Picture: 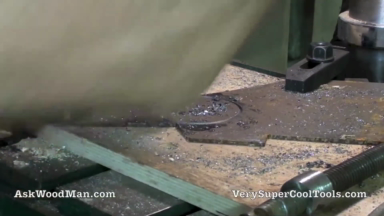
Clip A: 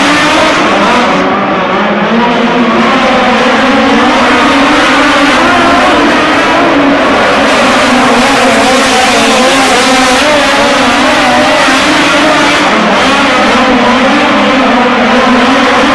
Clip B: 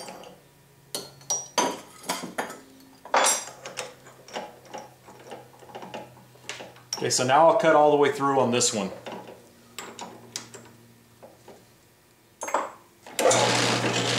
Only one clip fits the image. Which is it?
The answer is B